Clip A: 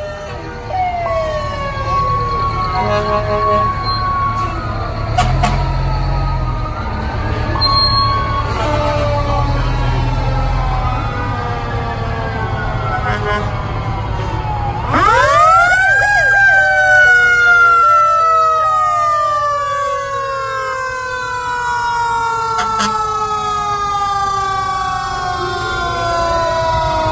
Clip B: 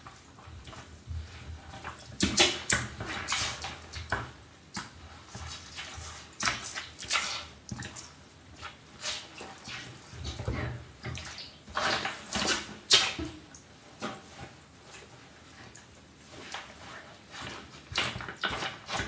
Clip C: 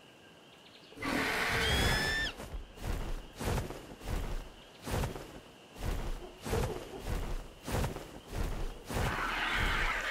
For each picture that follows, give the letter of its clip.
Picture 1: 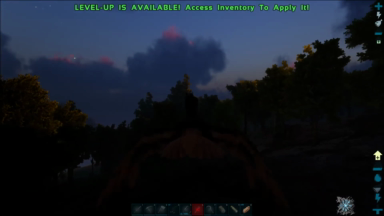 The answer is C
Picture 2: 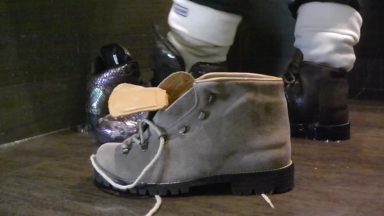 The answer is B